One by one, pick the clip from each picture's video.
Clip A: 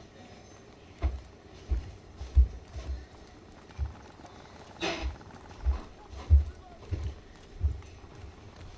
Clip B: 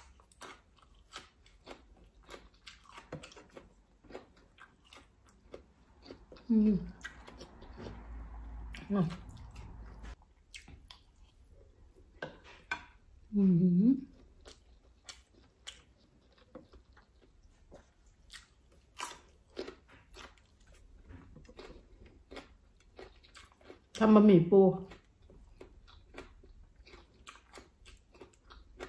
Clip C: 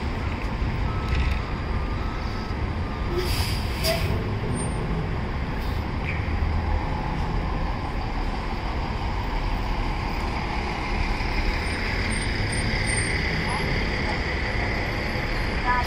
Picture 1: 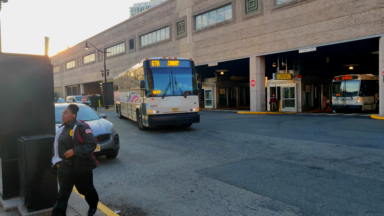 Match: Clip C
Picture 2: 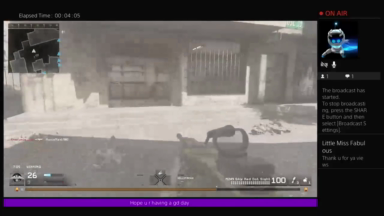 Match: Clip A